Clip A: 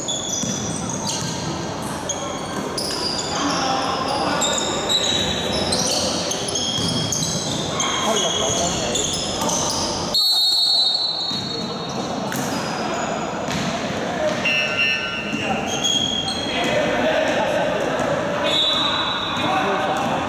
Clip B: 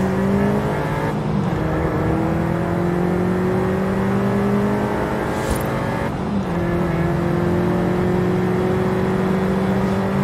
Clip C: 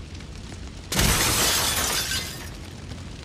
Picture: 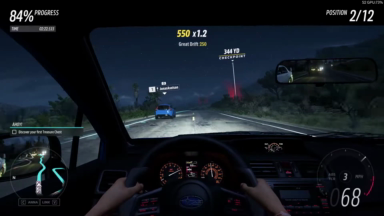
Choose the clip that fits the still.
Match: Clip B